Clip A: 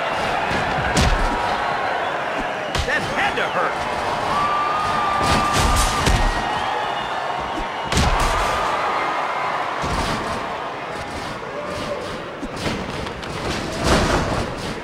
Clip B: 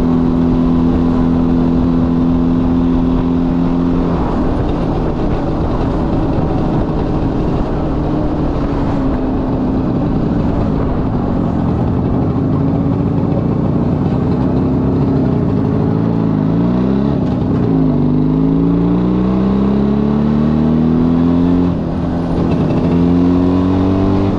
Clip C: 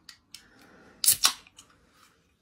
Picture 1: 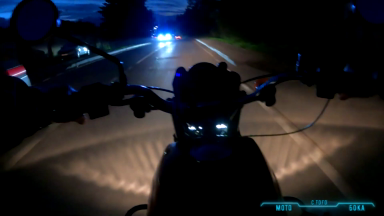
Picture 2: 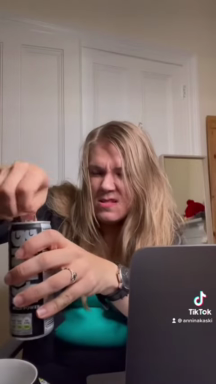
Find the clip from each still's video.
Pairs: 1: B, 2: C